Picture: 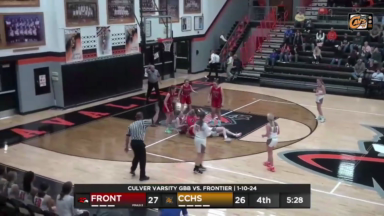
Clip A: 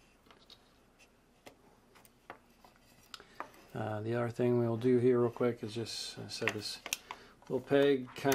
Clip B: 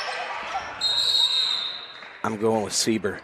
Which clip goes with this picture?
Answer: B